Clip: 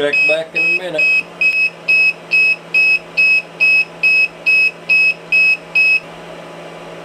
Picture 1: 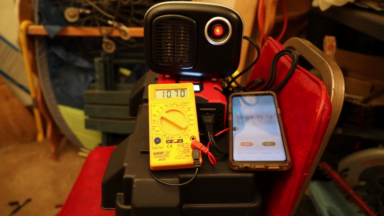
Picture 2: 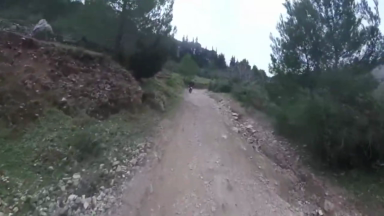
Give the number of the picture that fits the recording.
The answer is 1